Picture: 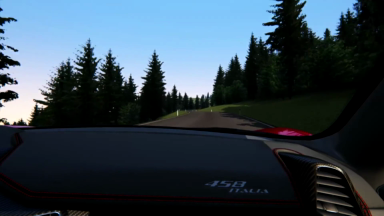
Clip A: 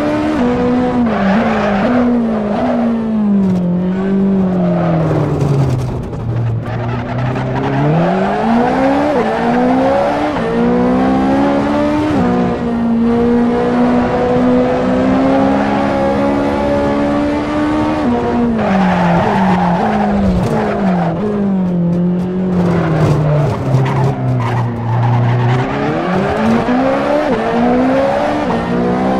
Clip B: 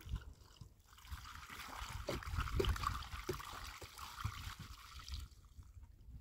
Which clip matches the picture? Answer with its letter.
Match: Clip A